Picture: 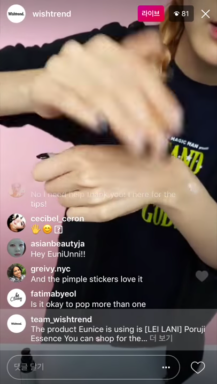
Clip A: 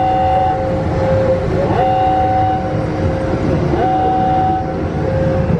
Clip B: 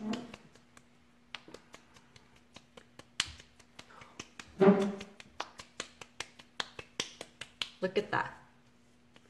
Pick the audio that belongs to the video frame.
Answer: B